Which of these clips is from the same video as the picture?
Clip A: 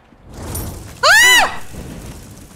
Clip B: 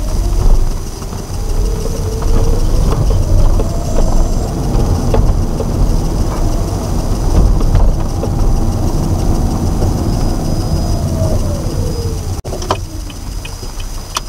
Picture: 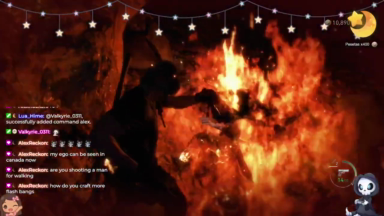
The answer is A